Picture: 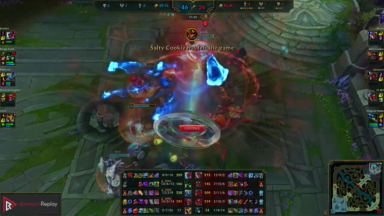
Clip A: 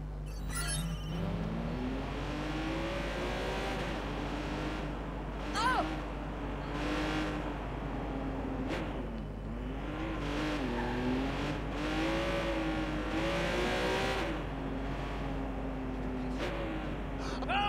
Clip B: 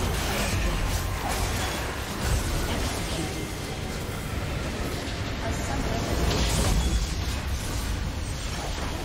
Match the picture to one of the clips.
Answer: B